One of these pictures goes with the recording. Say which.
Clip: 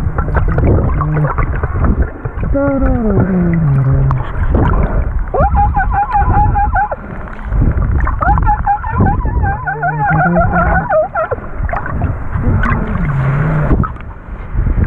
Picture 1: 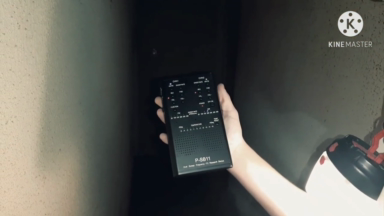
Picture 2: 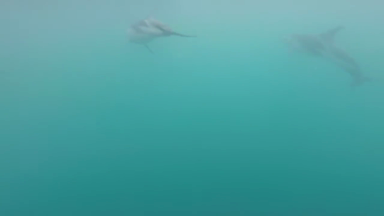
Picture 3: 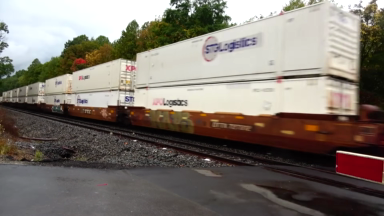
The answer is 2